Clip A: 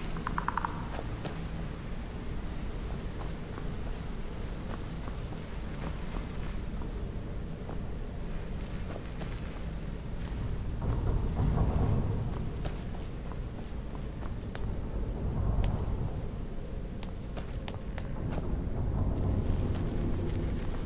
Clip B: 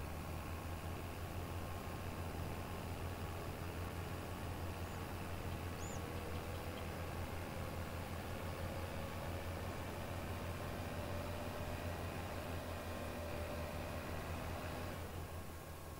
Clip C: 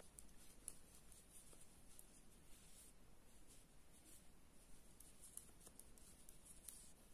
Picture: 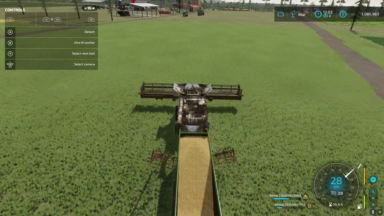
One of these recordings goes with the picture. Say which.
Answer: B